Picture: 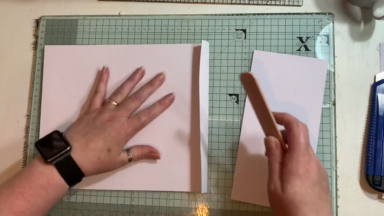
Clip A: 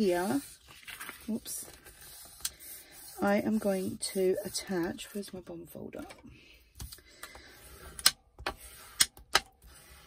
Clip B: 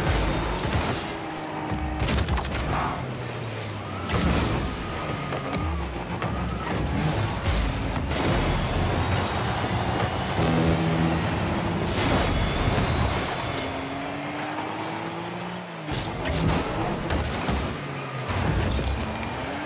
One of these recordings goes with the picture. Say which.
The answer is A